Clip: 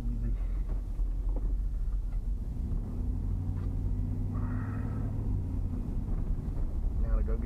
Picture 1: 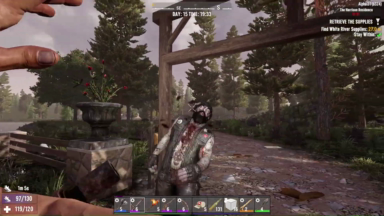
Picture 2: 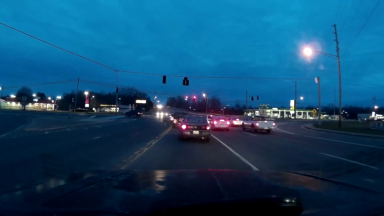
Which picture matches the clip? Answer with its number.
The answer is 2